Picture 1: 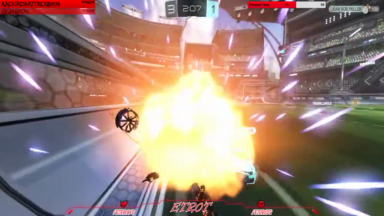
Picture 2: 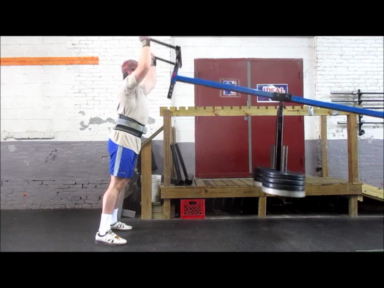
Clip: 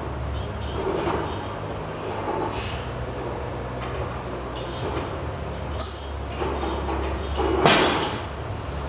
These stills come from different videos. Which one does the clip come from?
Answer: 2